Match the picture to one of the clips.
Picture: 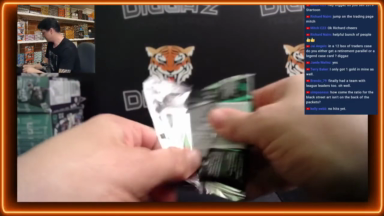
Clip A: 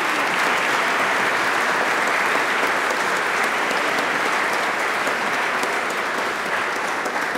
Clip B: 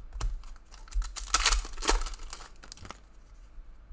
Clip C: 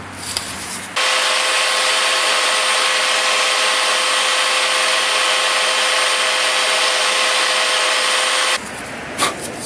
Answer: B